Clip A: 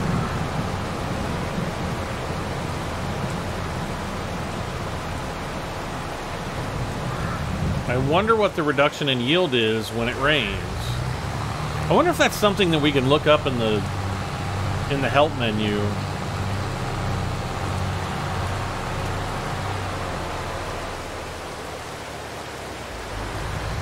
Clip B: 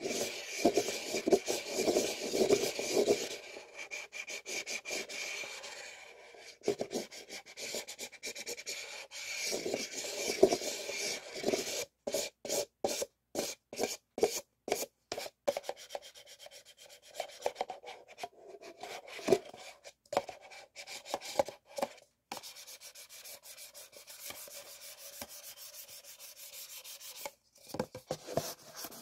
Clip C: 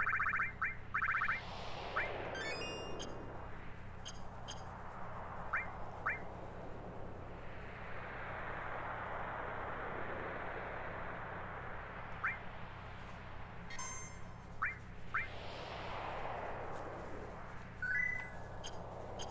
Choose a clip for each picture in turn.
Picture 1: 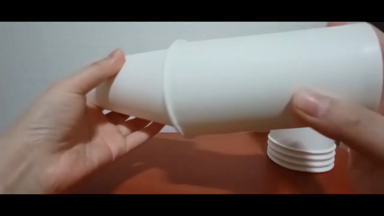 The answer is B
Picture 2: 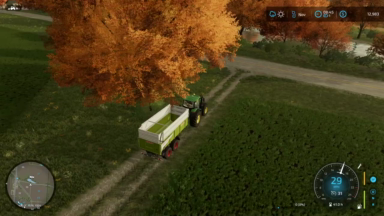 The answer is A